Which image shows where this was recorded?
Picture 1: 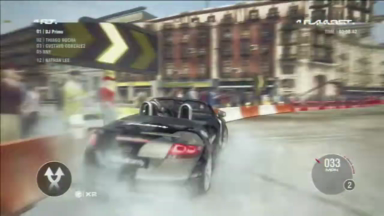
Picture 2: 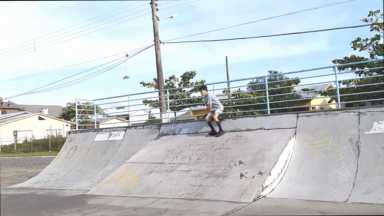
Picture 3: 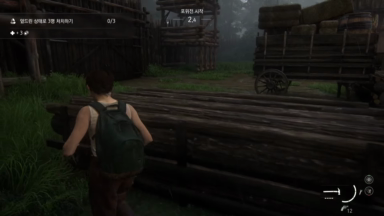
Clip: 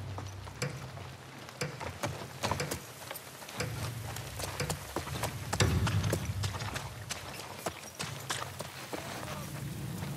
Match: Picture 3